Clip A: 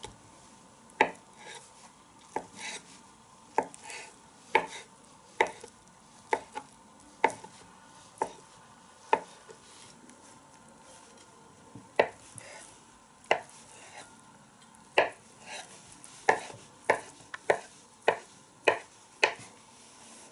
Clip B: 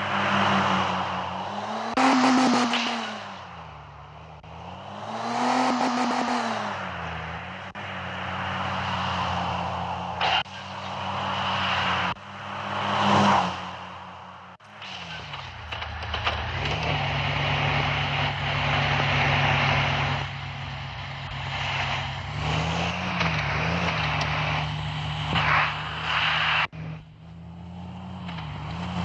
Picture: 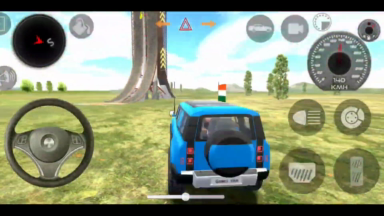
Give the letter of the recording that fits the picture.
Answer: B